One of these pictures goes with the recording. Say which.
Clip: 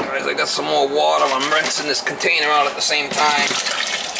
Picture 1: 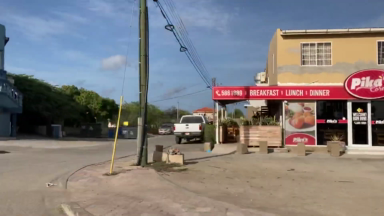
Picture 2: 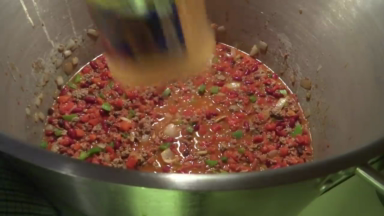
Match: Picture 2